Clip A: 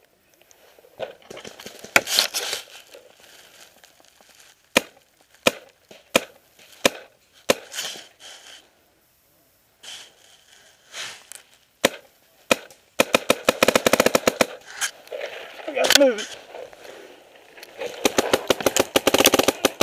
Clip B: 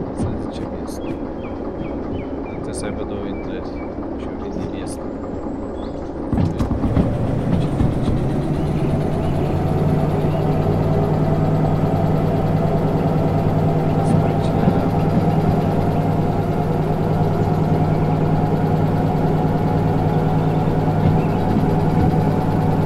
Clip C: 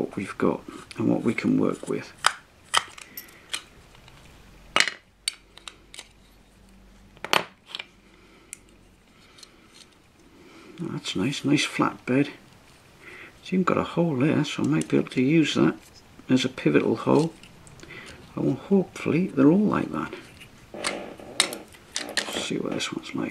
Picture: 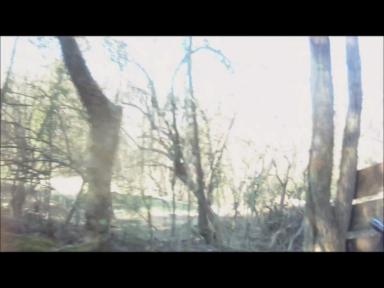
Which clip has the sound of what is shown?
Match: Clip A